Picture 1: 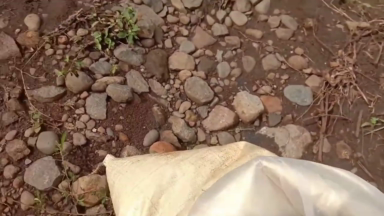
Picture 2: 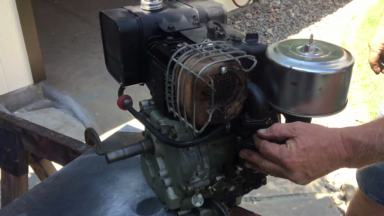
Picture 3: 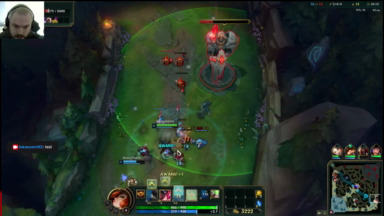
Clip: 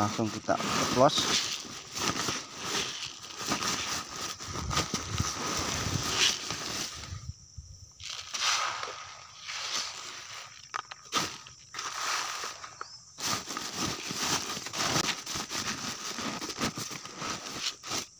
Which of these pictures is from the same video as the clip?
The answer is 1